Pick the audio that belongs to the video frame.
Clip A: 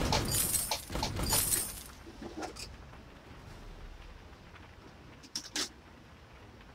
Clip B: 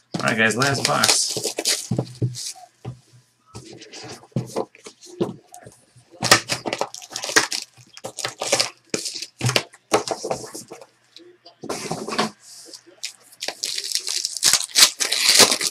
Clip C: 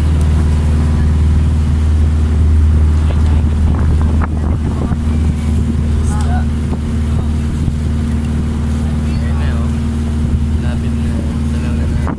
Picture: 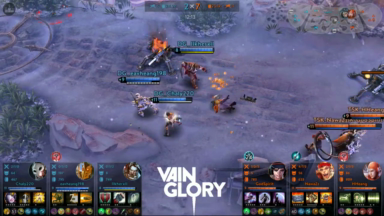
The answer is A